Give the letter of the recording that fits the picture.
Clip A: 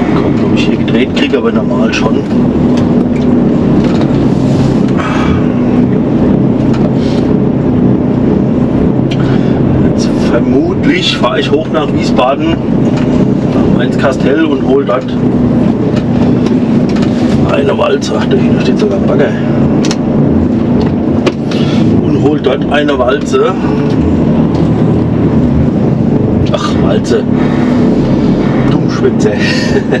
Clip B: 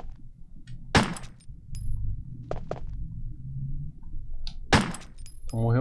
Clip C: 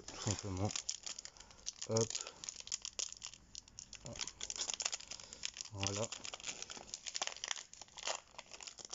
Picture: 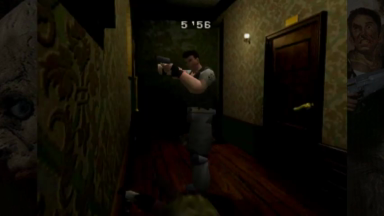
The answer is B